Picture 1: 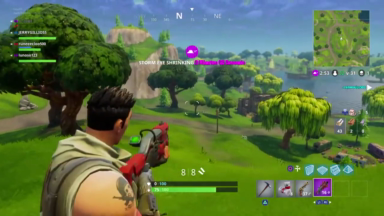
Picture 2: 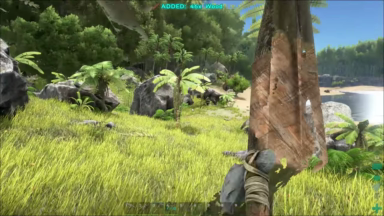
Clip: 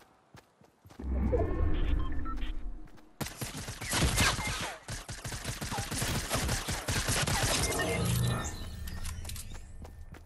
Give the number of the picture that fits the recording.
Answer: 1